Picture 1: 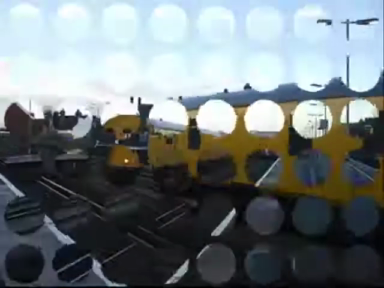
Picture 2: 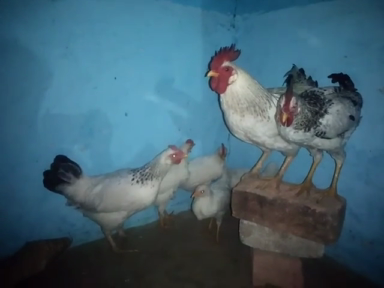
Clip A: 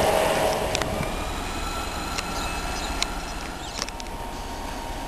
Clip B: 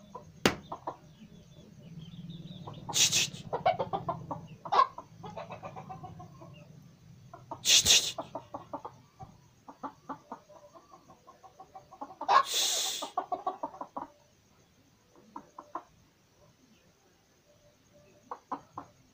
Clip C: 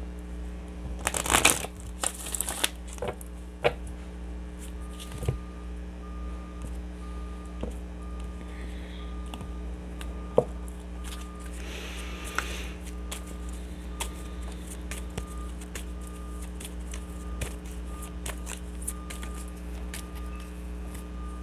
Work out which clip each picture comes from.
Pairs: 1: A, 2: B